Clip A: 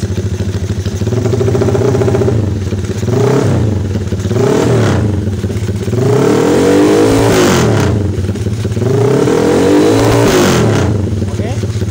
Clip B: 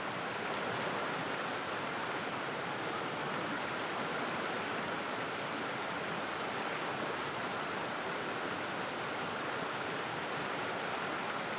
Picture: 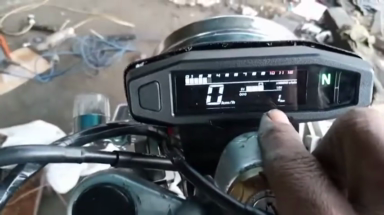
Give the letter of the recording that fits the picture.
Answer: A